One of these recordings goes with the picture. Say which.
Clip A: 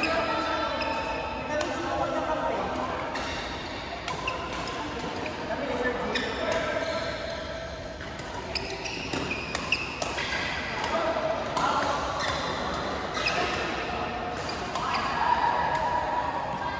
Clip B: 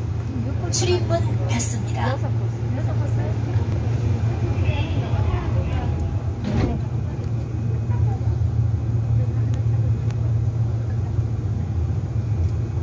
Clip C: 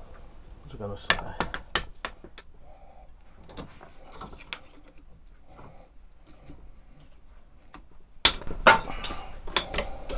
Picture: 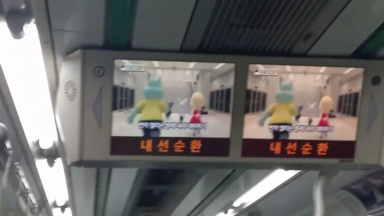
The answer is B